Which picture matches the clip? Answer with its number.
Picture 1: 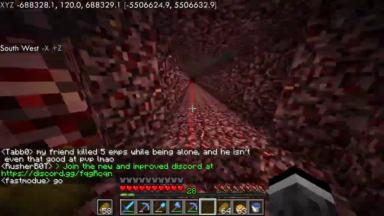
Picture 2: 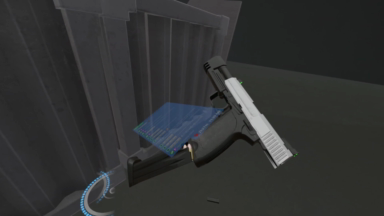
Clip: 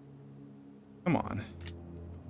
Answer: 2